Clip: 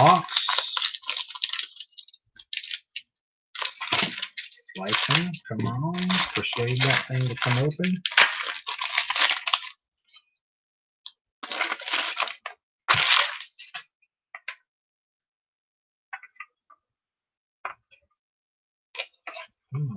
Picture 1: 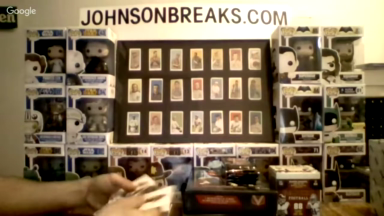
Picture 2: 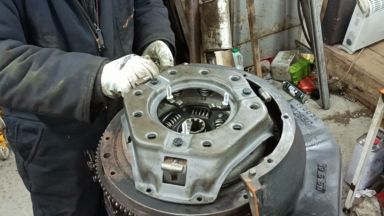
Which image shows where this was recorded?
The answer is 1